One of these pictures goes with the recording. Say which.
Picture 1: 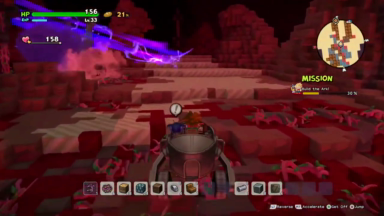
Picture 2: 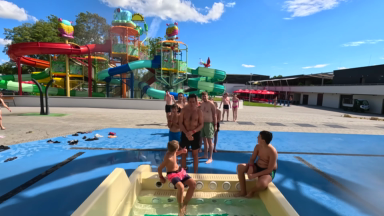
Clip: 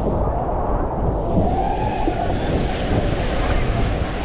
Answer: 2